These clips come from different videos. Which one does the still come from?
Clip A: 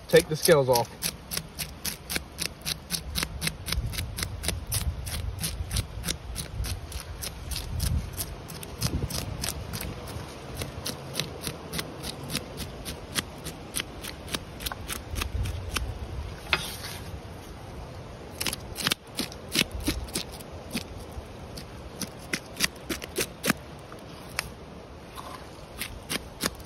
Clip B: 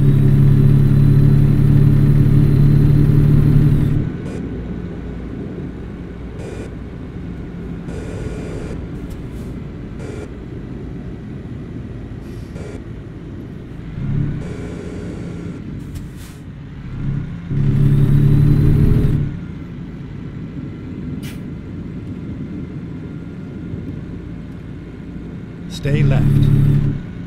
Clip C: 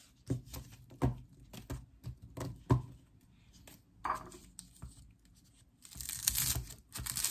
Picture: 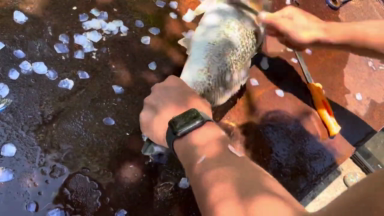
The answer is A